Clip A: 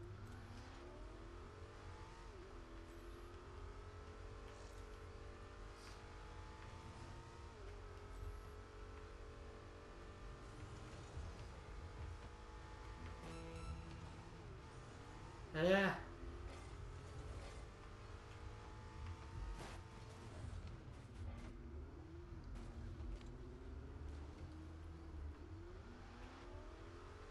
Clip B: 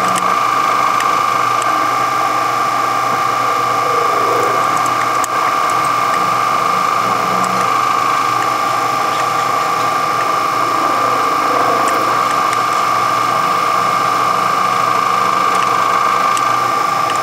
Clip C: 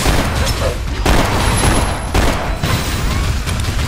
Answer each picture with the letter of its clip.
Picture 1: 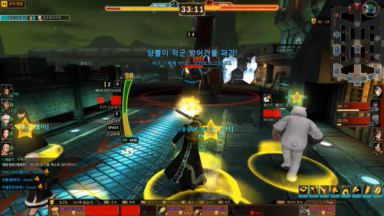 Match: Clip C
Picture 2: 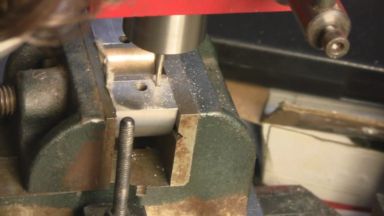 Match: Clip B